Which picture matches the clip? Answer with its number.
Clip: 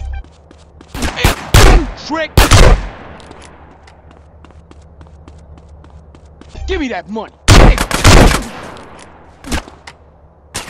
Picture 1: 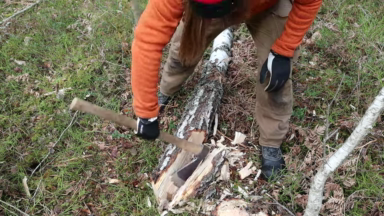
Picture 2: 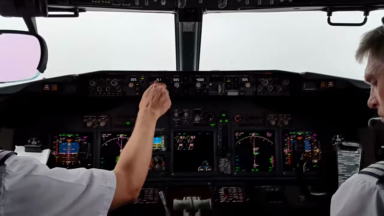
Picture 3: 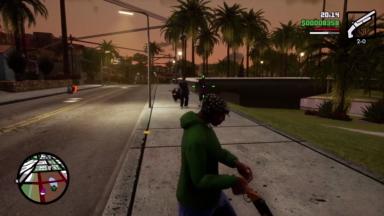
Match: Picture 3